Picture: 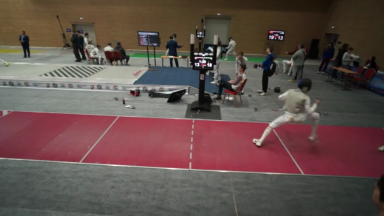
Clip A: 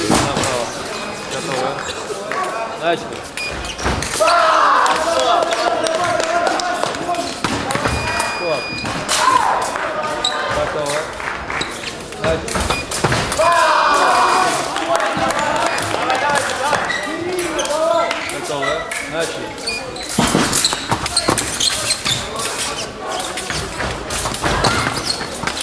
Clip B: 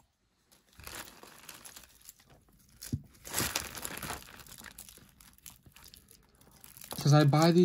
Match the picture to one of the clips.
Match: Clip A